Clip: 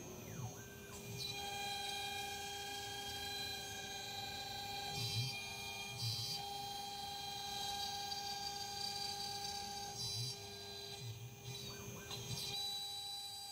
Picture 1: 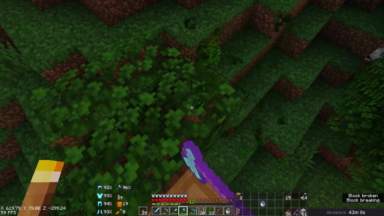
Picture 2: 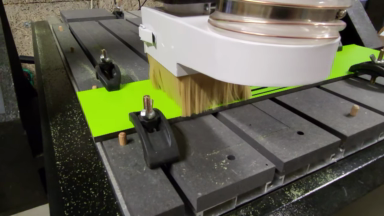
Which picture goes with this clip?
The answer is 2